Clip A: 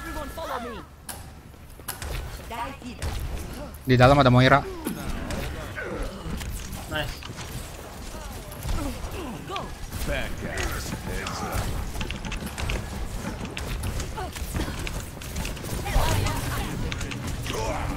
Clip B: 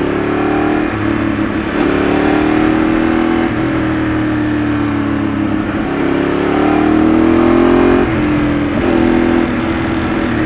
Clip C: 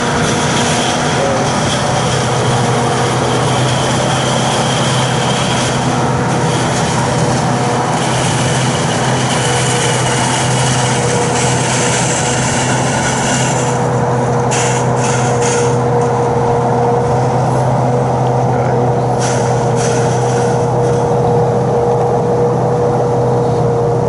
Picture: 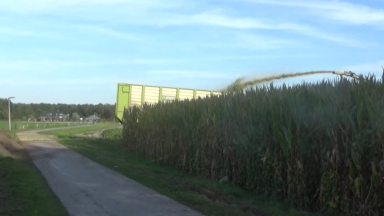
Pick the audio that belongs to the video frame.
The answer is C